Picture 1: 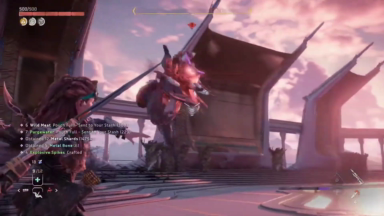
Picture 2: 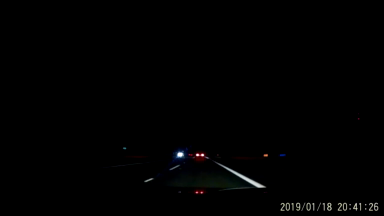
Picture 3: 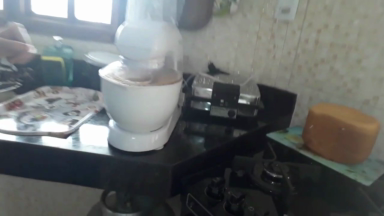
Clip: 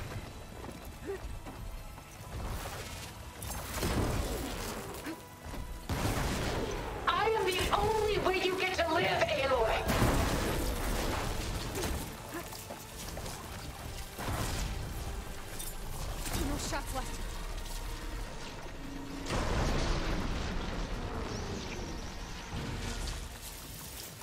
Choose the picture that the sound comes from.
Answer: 1